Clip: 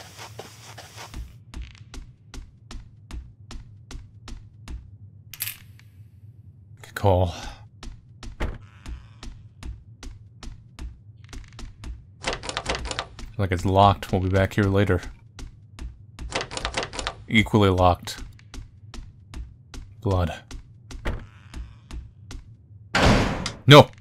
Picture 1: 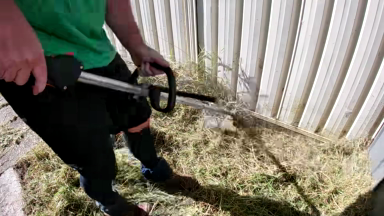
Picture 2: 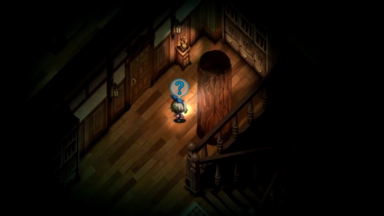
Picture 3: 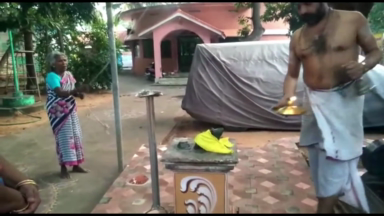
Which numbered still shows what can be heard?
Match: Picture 2